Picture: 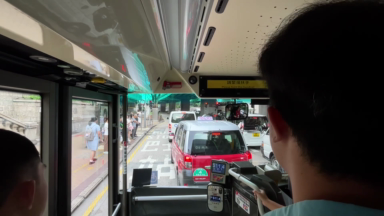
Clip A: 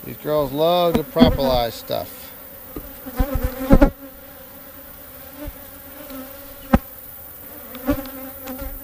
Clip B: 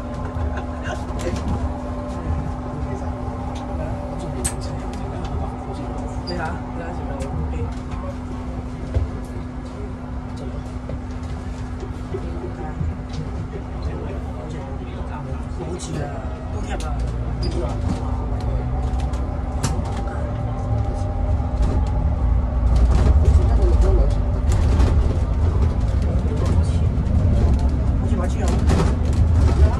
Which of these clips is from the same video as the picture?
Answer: B